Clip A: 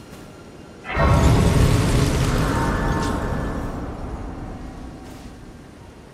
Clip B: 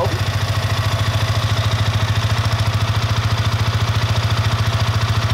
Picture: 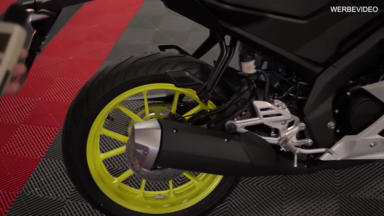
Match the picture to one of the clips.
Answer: B